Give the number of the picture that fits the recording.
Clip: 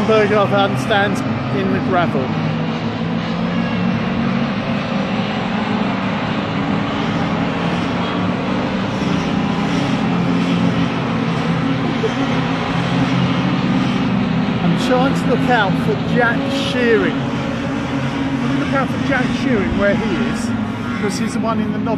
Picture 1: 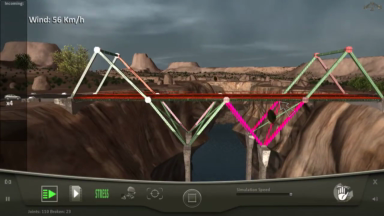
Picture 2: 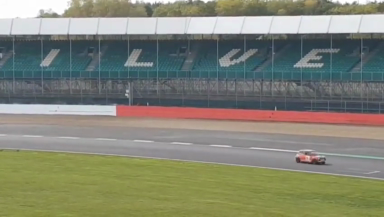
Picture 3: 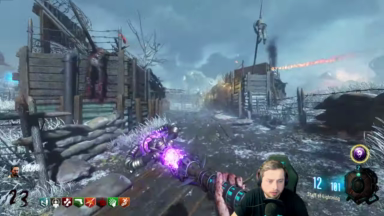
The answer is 2